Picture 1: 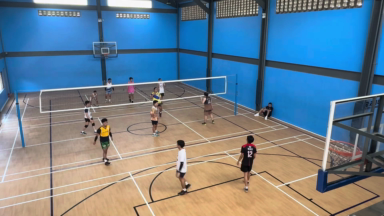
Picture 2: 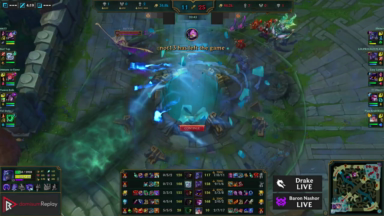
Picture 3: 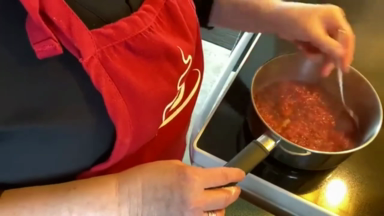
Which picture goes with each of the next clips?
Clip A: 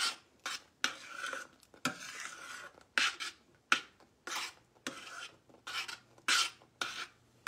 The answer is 3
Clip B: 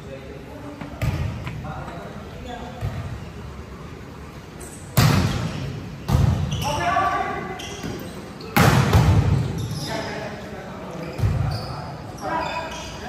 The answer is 1